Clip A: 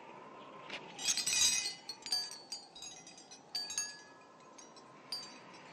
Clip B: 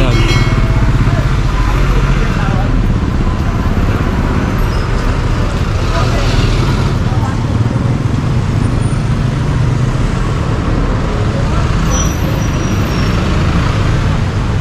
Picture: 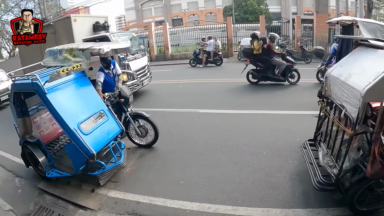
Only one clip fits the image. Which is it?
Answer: B